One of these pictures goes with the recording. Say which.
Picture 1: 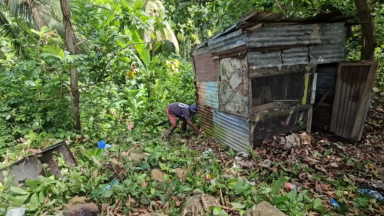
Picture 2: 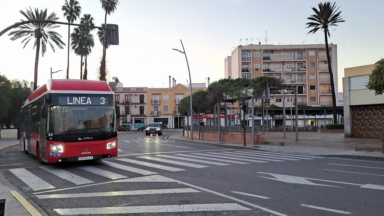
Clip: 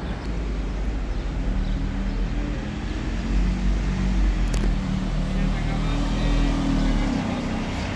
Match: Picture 2